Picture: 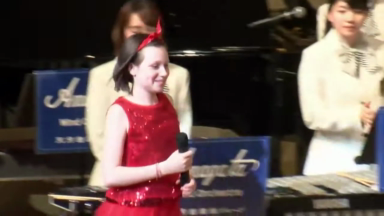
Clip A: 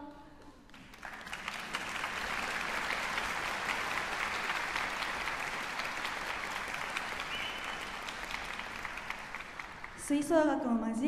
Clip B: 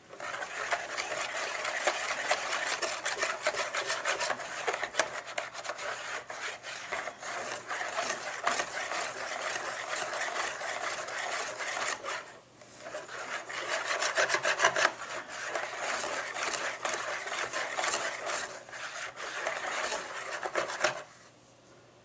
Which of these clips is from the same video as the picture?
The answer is A